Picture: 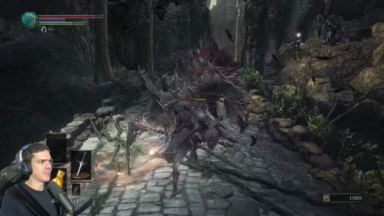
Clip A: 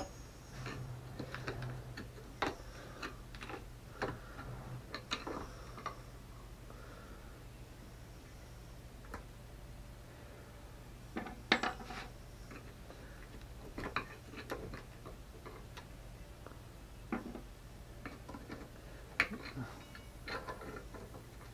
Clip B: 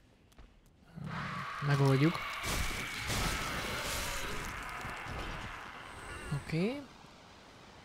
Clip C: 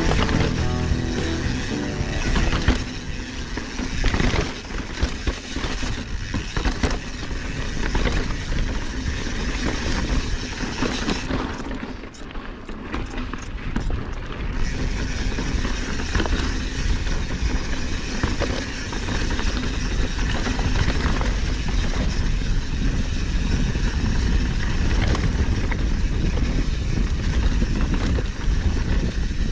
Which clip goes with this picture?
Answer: B